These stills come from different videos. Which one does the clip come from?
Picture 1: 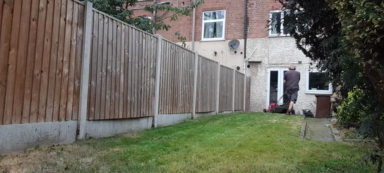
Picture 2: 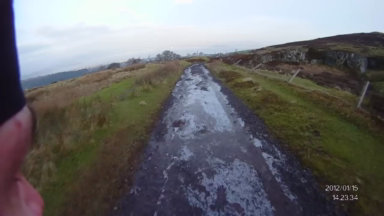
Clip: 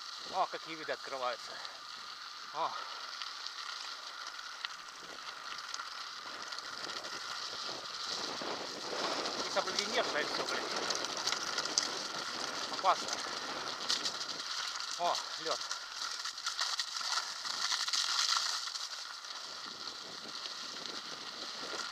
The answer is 2